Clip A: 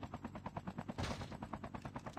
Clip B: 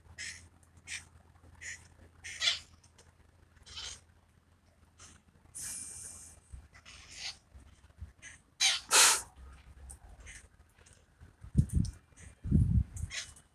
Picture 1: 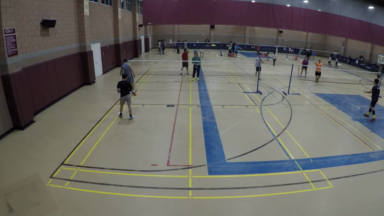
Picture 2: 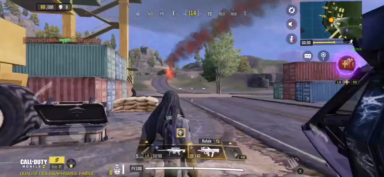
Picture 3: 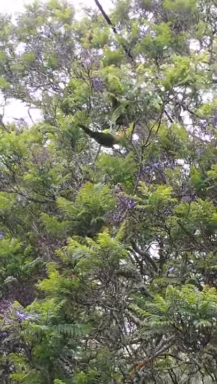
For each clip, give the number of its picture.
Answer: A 2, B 3